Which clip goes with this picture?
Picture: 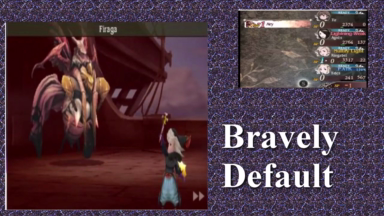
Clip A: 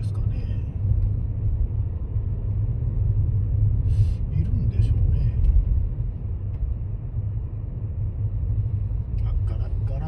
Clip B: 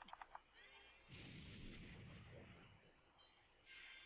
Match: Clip B